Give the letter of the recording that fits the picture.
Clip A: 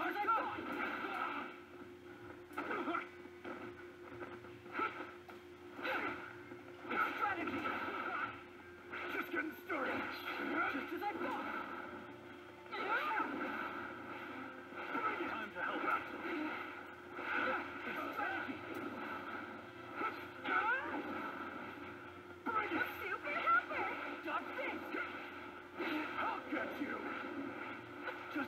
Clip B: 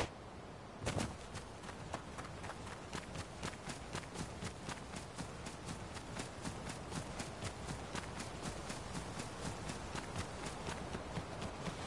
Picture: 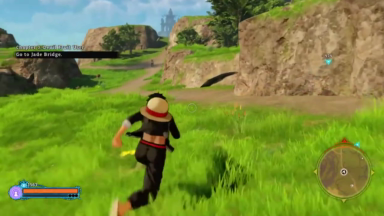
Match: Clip B